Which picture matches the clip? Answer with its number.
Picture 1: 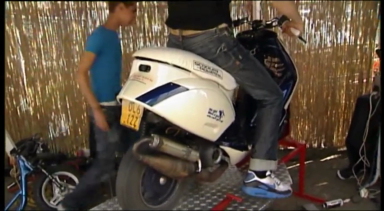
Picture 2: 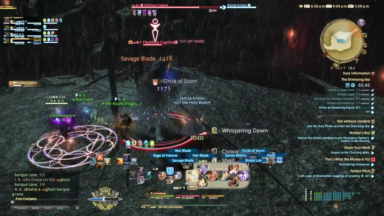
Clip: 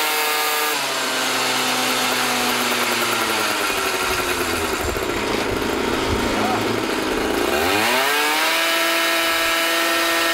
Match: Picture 1